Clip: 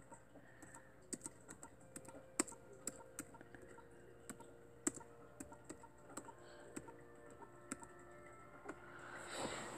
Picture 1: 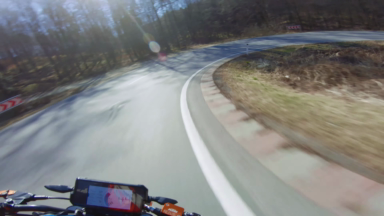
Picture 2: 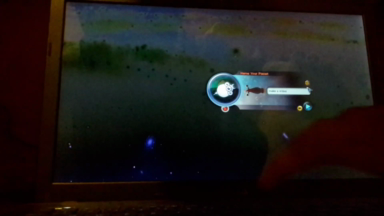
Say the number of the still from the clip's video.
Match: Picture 2